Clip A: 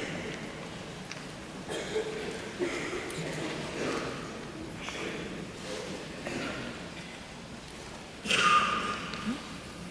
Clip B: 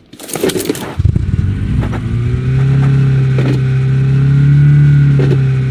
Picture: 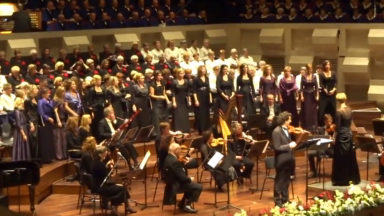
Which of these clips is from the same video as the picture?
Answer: A